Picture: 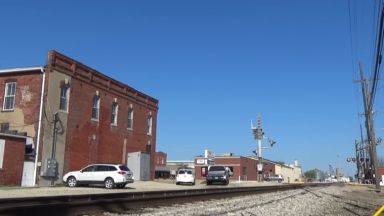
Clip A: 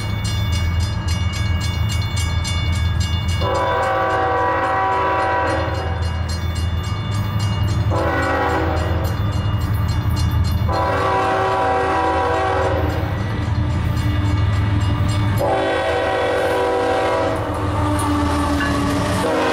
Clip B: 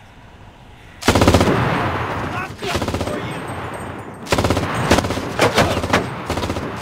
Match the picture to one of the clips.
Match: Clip A